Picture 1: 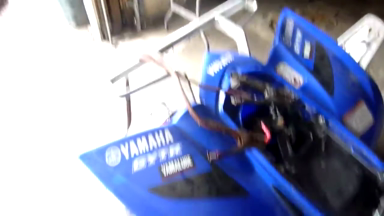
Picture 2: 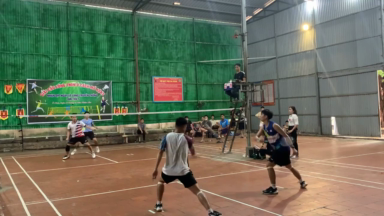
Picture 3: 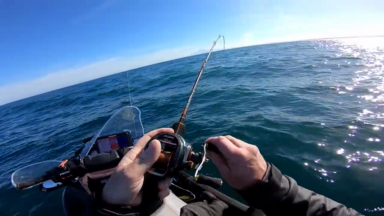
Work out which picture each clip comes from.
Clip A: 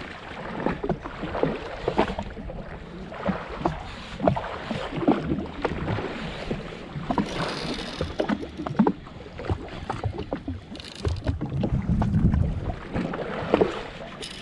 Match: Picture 3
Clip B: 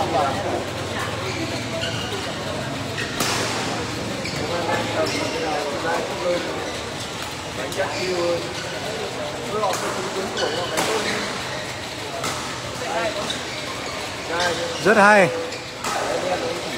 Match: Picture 2